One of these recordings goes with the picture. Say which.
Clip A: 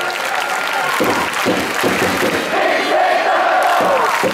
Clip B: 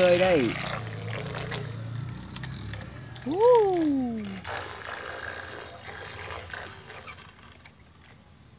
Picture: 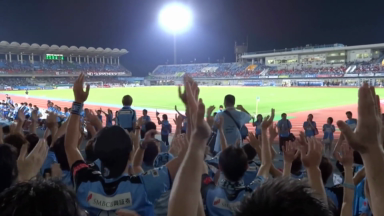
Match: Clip A